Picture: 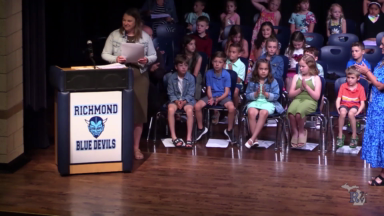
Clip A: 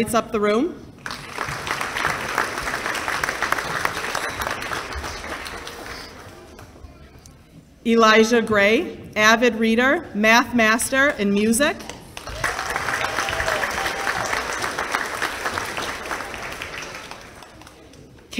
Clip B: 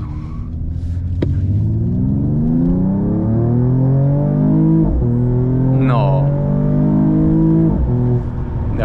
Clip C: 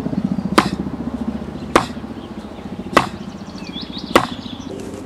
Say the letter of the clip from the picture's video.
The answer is A